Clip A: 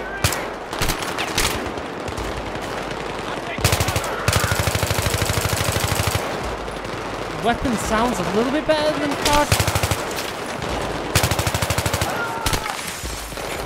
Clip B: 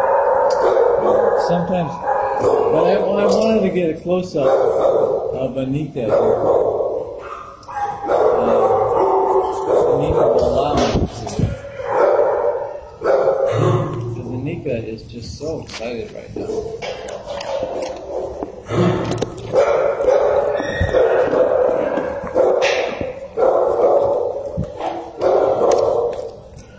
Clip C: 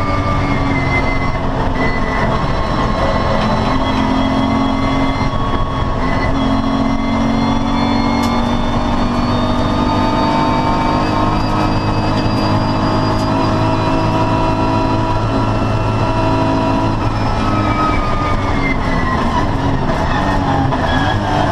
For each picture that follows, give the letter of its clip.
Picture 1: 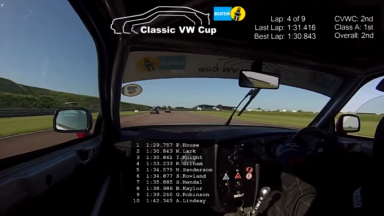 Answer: C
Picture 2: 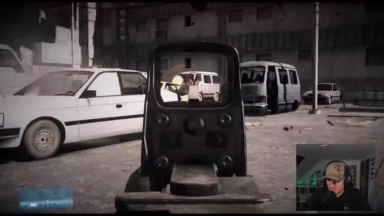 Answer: A